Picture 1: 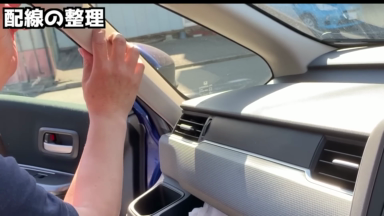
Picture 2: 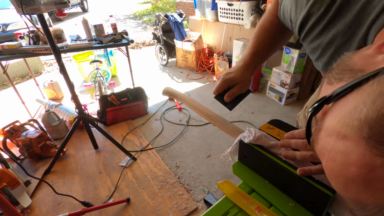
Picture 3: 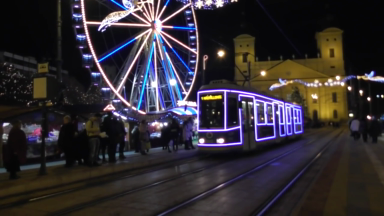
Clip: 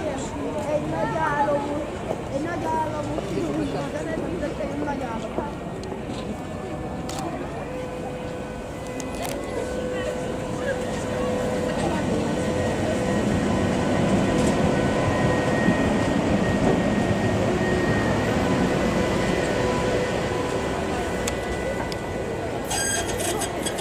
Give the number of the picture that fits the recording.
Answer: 3